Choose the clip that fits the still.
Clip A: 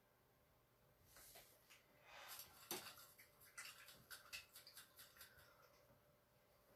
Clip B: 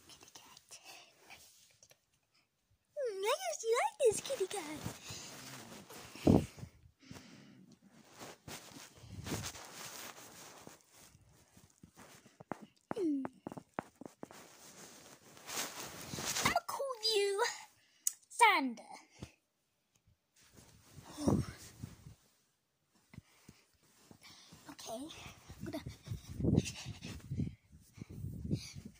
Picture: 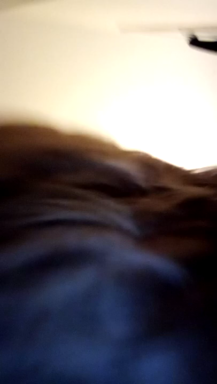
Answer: B